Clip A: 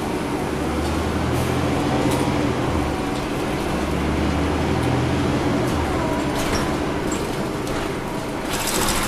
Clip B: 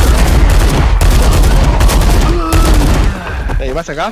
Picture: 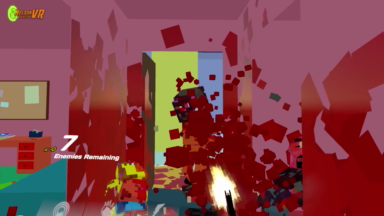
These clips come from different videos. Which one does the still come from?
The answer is B